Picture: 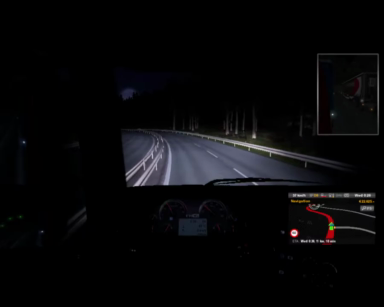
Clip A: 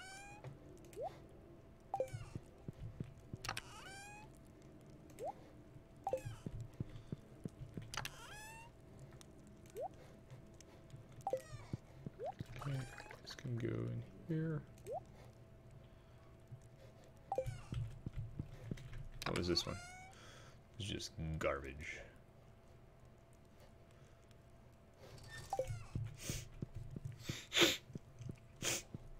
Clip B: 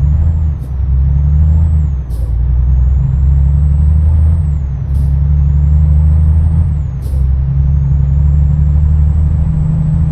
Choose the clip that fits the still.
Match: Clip B